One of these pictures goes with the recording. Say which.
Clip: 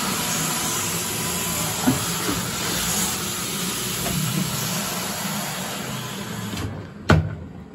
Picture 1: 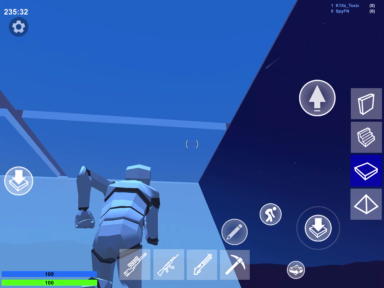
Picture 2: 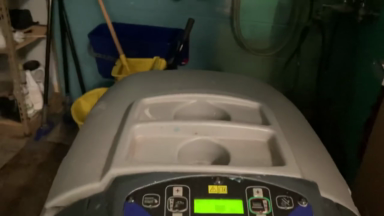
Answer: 2